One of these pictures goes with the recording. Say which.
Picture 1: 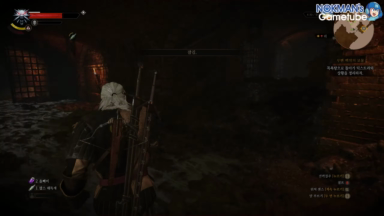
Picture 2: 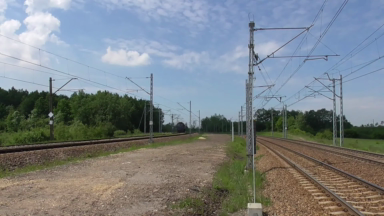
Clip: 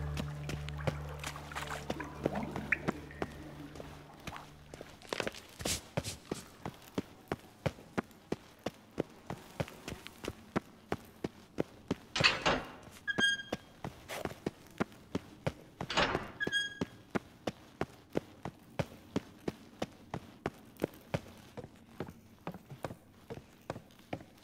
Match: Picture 1